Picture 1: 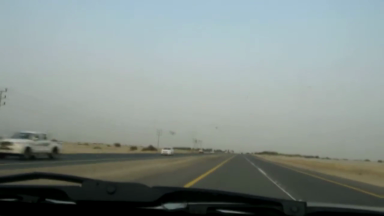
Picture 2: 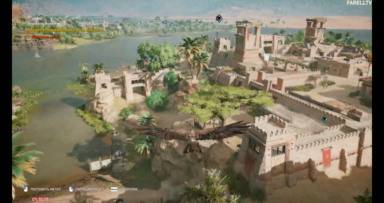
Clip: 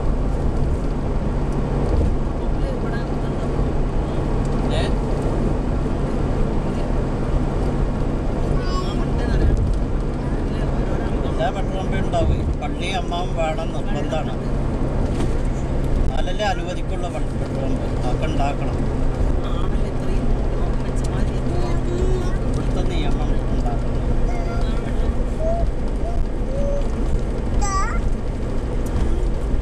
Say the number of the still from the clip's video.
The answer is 1